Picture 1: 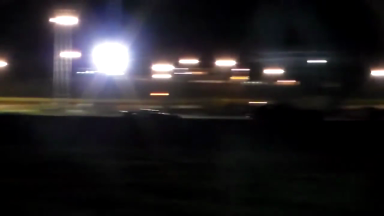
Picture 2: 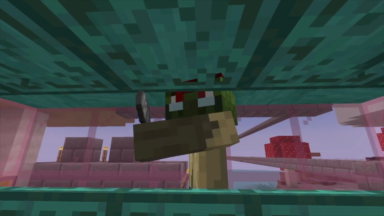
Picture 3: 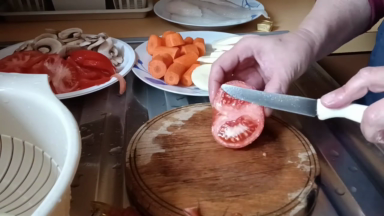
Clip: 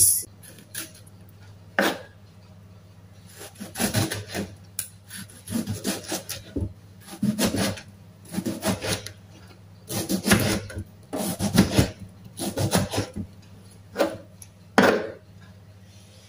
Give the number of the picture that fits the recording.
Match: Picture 3